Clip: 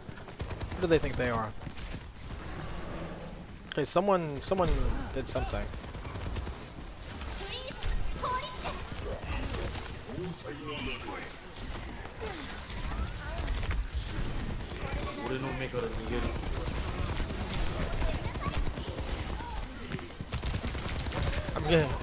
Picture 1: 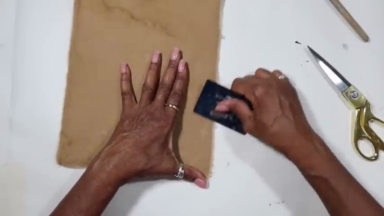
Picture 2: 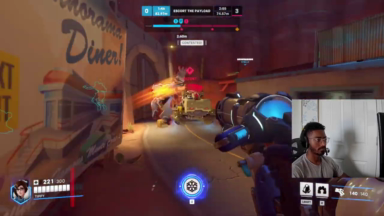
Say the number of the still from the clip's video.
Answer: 2